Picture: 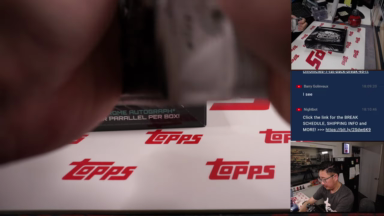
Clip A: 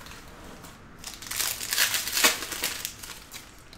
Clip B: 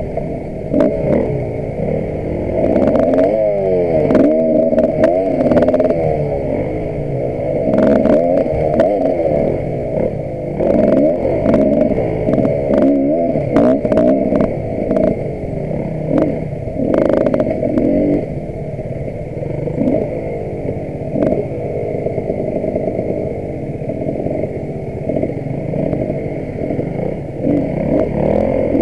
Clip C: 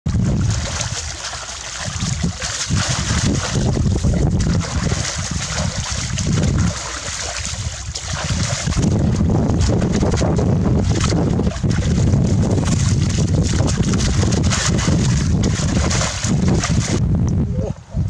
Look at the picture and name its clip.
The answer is A